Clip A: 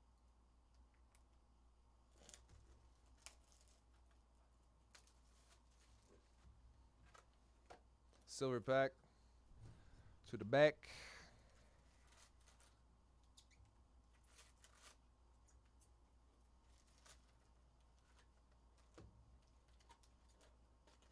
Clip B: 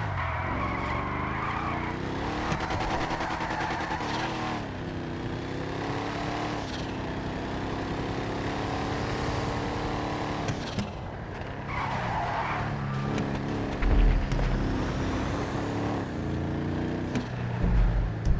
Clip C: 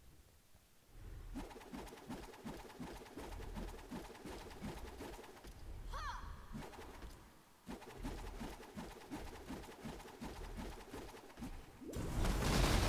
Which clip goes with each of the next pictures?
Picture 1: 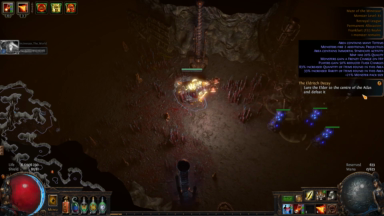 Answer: C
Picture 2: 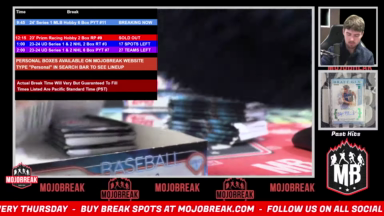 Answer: A